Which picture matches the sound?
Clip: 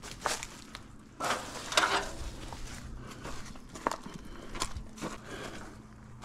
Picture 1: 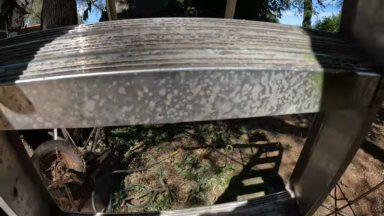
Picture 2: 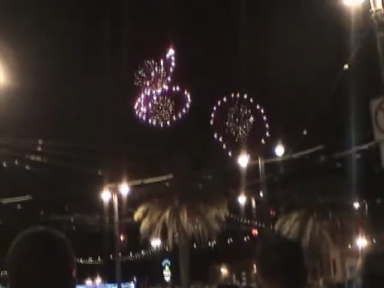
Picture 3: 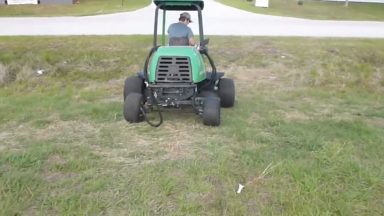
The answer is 1